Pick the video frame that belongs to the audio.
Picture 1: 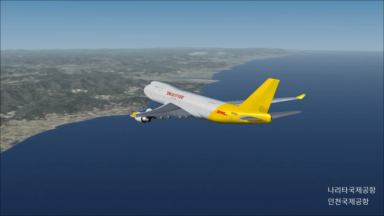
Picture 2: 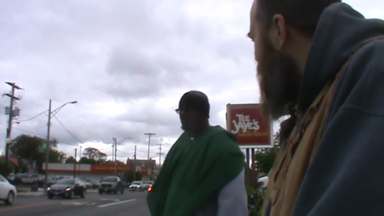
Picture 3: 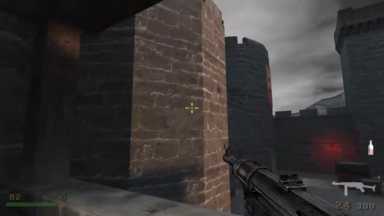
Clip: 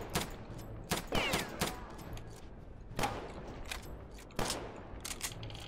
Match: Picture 3